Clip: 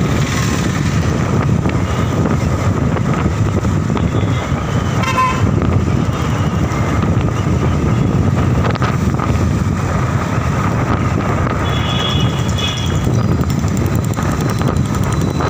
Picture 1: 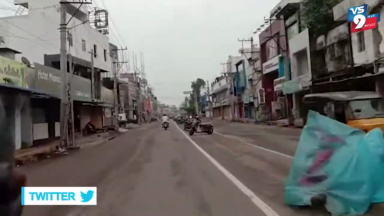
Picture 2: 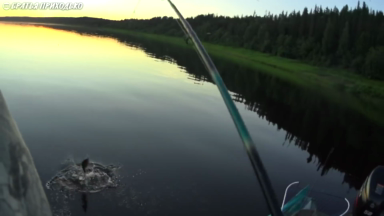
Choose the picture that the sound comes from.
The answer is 1